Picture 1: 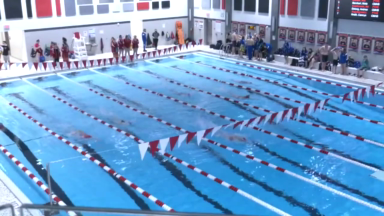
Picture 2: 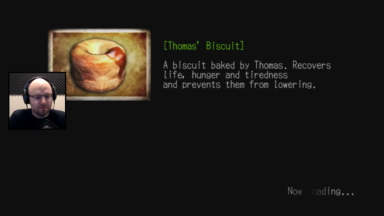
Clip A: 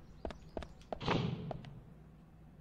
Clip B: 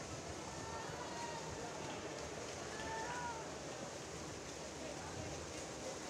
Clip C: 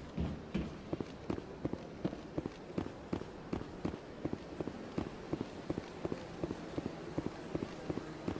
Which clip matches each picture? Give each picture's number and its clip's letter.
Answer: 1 B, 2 A